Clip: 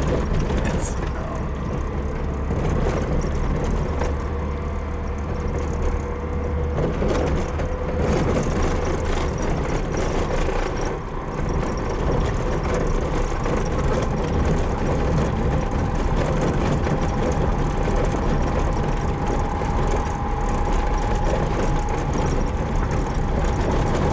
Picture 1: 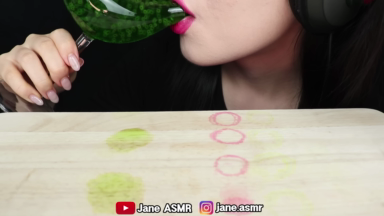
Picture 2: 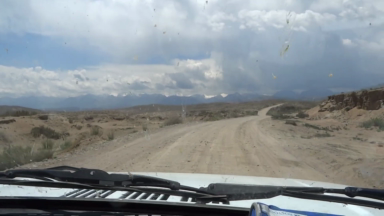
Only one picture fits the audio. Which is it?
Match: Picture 2